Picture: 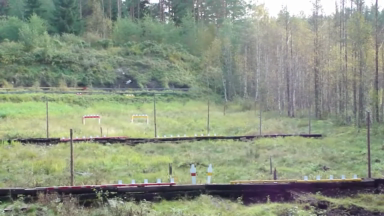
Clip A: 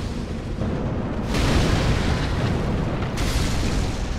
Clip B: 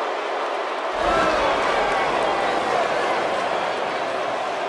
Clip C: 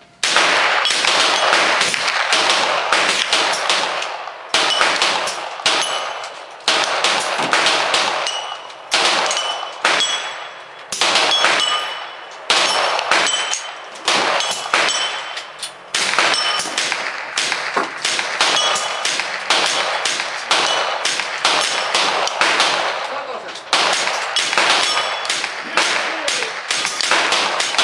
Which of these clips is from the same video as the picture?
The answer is C